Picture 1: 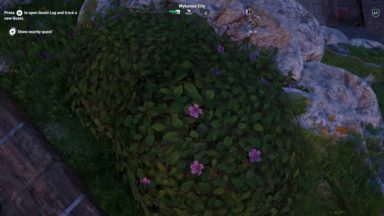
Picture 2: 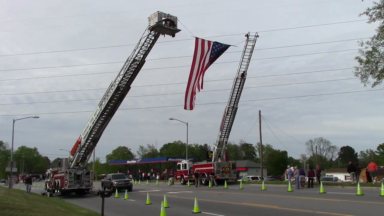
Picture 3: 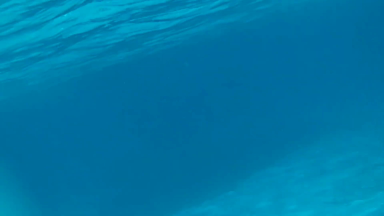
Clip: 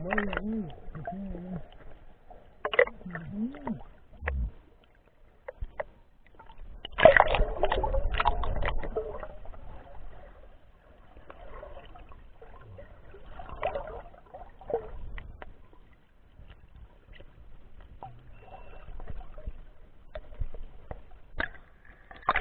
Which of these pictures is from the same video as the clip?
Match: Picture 3